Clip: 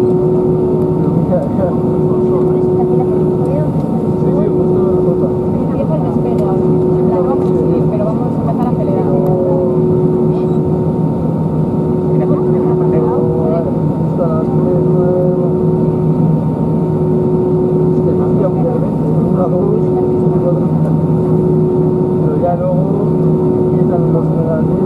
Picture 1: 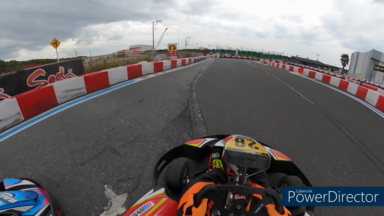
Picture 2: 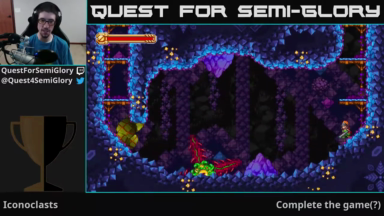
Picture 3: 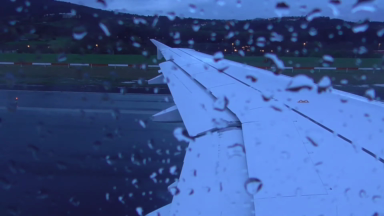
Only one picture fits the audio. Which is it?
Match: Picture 3